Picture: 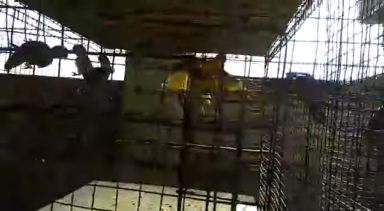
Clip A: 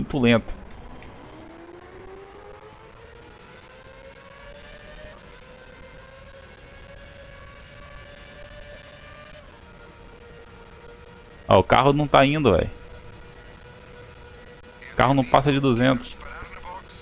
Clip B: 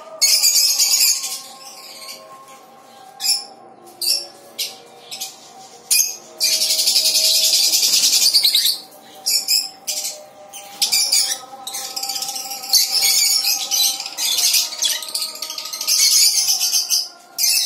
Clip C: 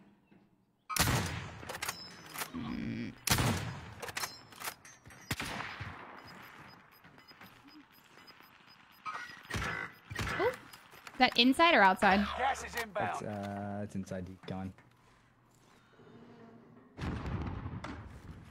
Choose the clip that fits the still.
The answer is B